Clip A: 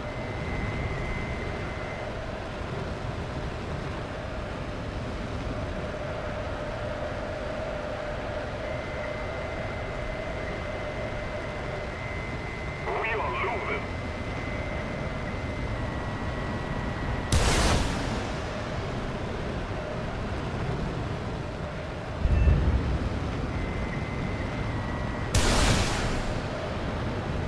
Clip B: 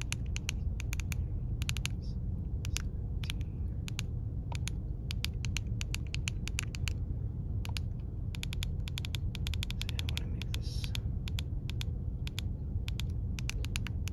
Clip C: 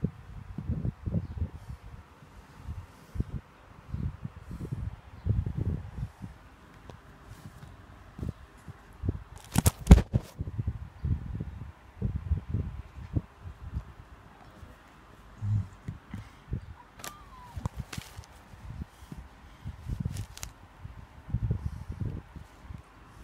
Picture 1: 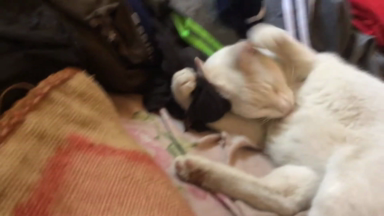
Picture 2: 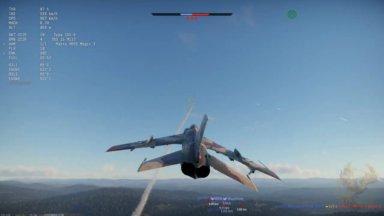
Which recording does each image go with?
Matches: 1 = C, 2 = A